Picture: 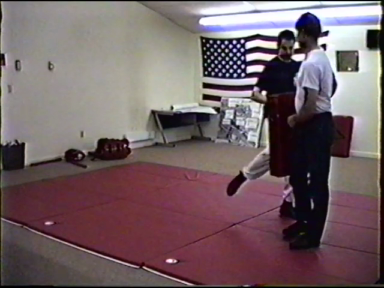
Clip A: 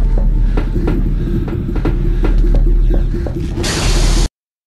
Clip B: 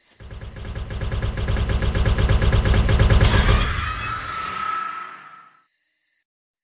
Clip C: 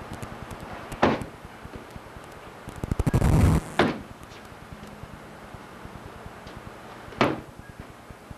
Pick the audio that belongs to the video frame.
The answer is C